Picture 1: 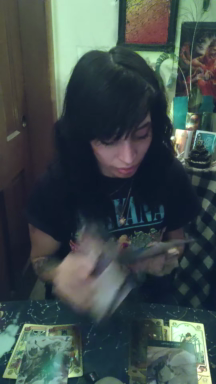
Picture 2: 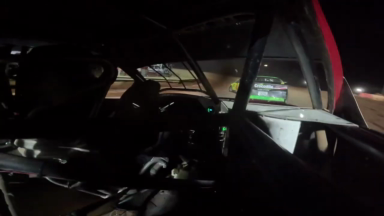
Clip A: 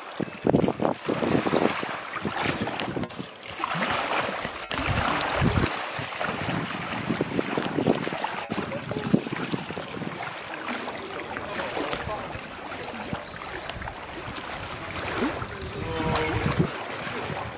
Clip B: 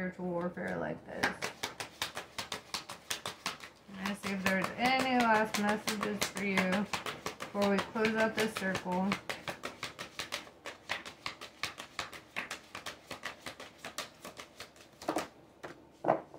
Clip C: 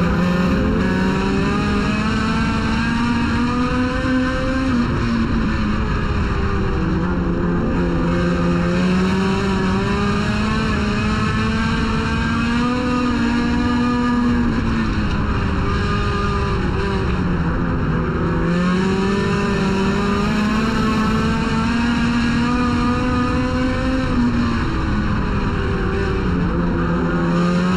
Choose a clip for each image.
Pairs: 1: B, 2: C